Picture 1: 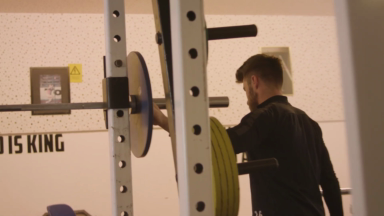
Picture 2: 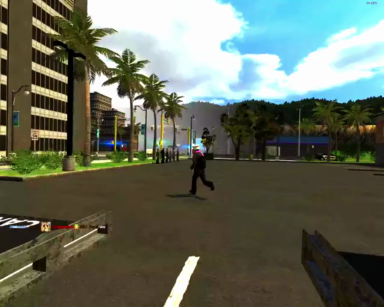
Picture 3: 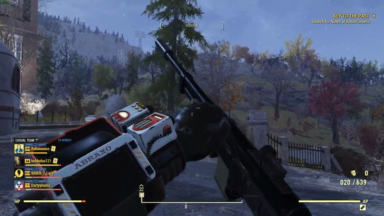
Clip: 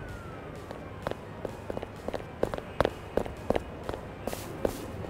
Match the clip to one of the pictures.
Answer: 2